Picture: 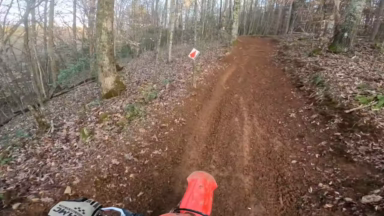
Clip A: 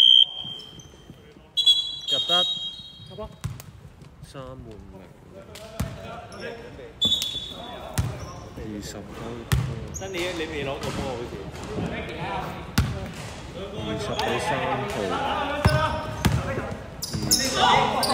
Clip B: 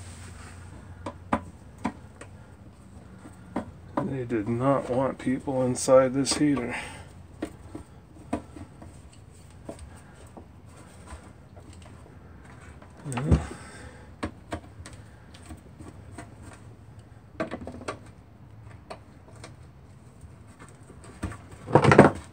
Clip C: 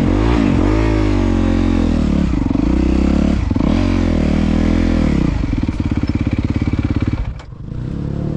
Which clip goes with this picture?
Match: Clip C